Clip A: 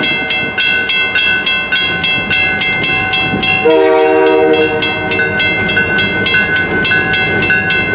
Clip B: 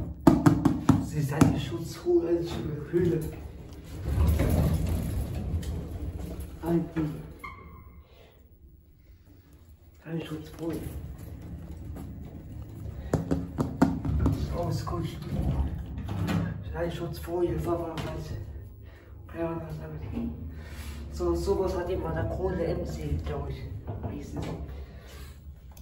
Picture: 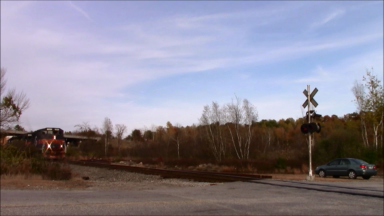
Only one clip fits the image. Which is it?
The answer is A